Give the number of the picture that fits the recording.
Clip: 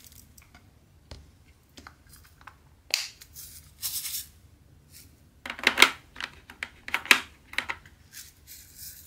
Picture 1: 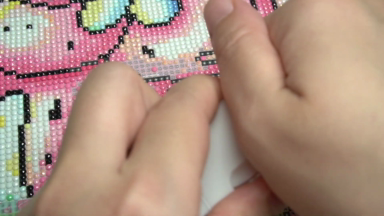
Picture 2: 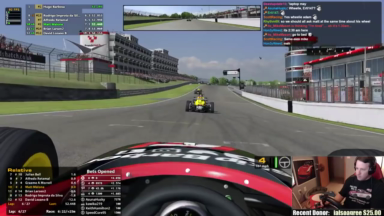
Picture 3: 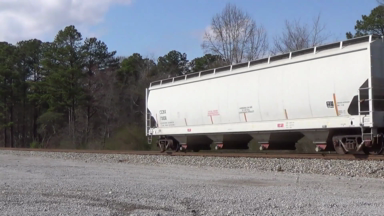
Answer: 1